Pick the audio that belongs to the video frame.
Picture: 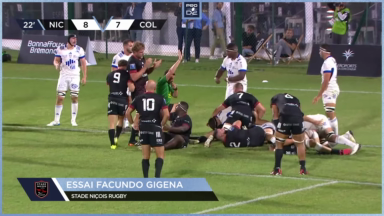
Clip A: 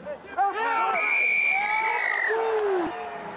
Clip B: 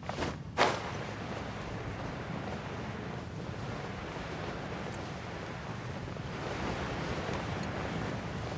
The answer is A